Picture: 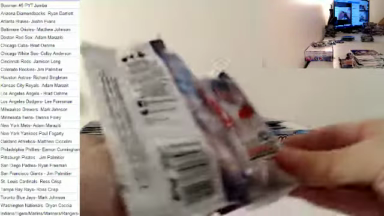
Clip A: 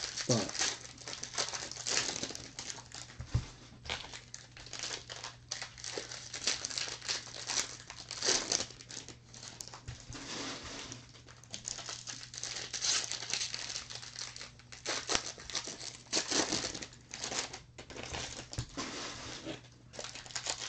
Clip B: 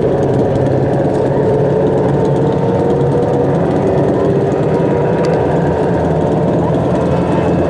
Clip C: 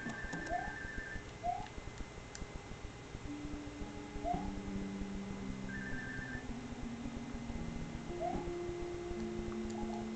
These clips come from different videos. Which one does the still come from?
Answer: A